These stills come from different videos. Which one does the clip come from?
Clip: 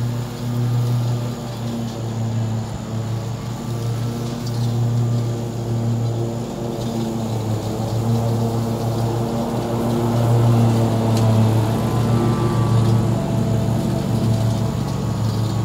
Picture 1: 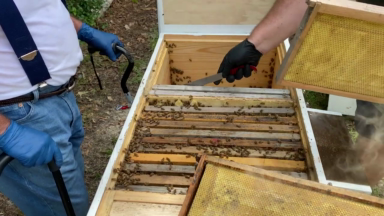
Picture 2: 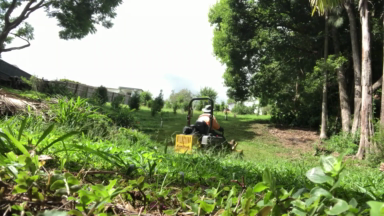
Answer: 2